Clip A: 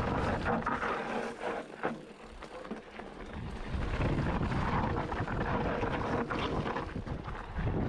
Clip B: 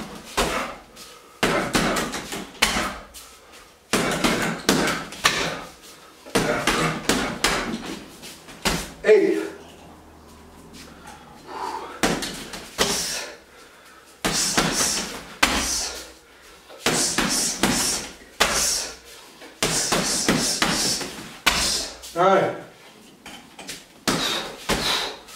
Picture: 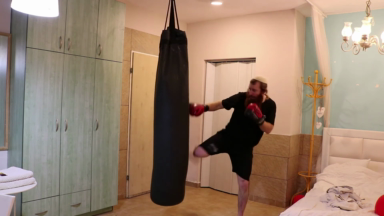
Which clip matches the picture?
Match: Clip B